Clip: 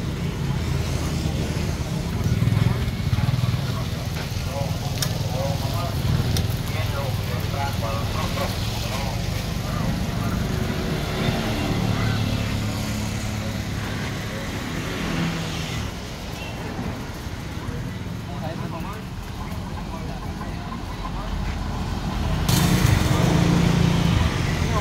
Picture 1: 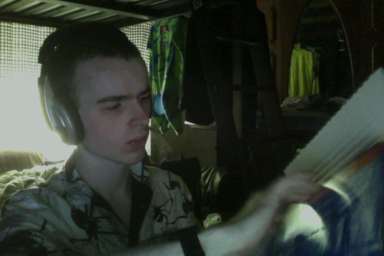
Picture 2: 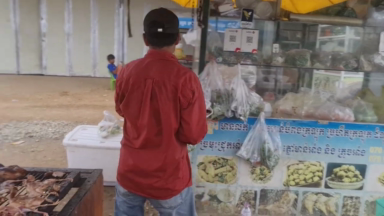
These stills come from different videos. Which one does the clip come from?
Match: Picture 2